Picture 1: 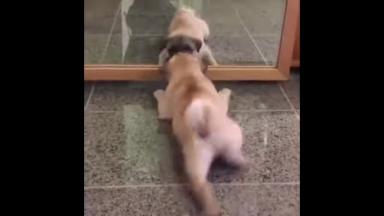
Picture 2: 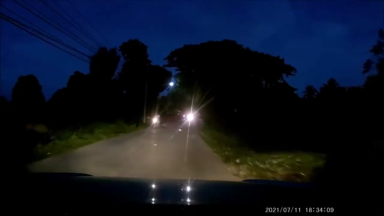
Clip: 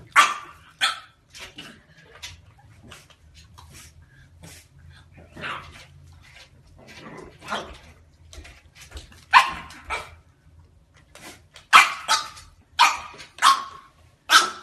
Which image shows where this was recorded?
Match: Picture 1